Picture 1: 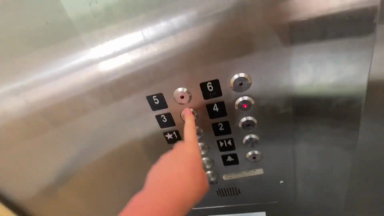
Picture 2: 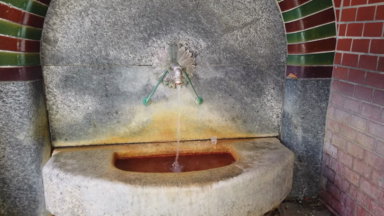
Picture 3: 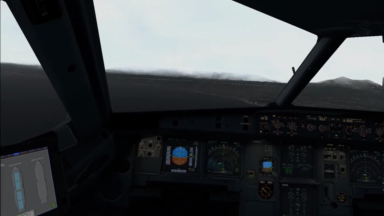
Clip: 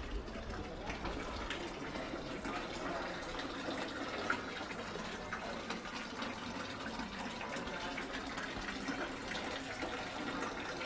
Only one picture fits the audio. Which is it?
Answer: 2